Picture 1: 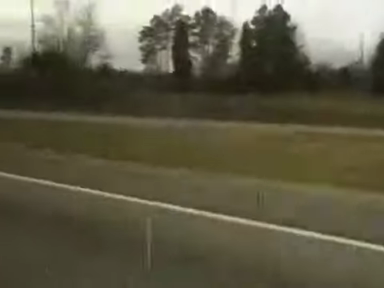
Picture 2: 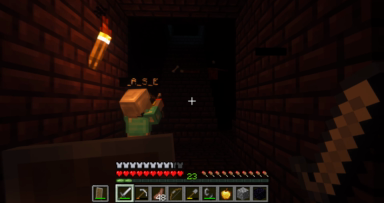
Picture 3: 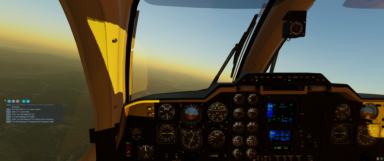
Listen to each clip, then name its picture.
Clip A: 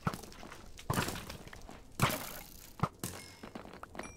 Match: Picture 2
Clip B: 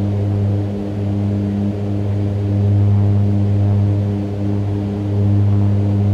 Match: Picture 3